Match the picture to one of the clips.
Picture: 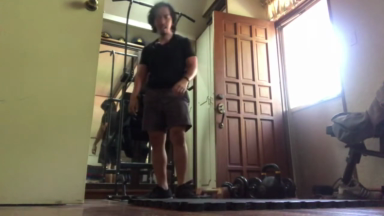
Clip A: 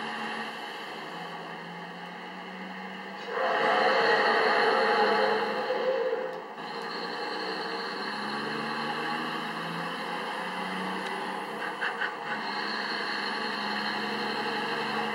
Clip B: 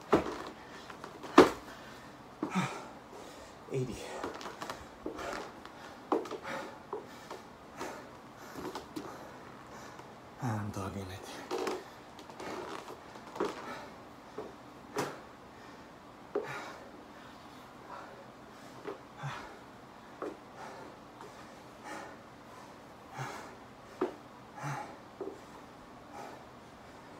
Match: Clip B